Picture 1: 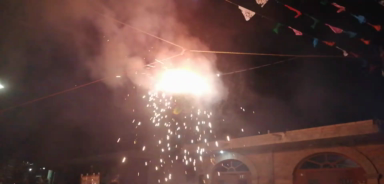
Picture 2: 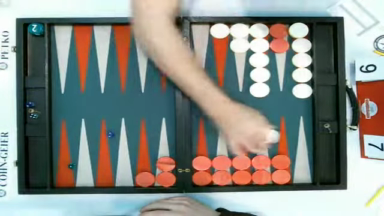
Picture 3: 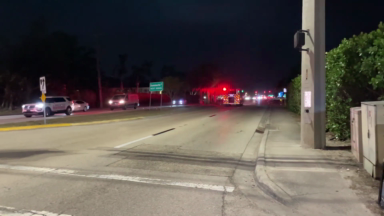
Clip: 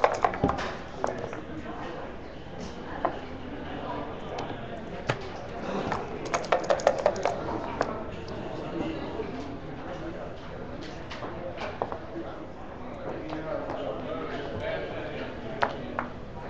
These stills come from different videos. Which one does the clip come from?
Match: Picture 2